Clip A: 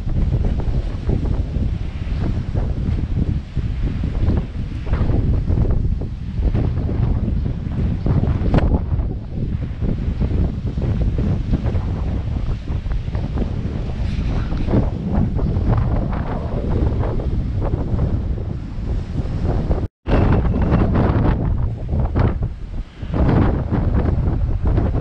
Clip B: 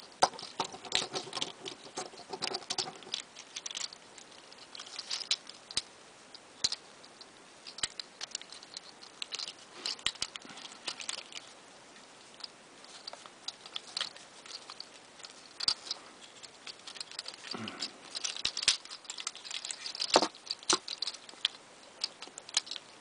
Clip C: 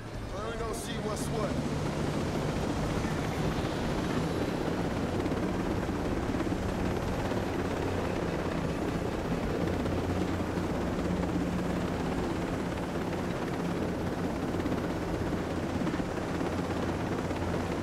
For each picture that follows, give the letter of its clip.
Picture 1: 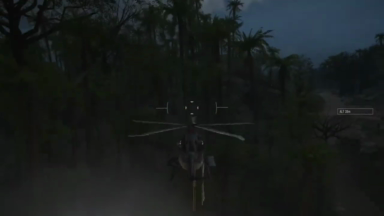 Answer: C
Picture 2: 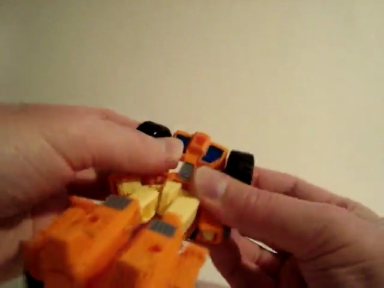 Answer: B